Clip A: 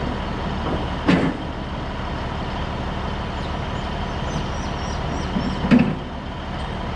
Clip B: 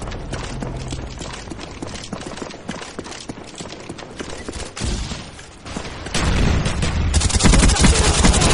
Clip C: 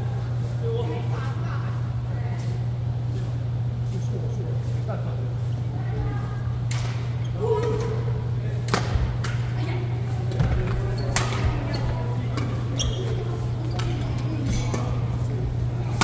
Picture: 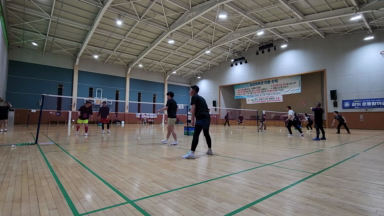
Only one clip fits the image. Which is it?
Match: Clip C